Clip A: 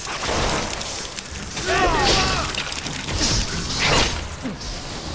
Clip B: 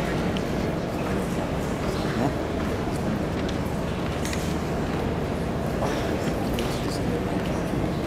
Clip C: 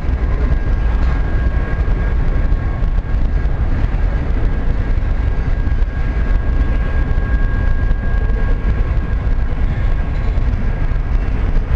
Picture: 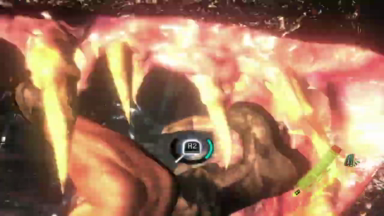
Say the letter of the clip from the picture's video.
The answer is A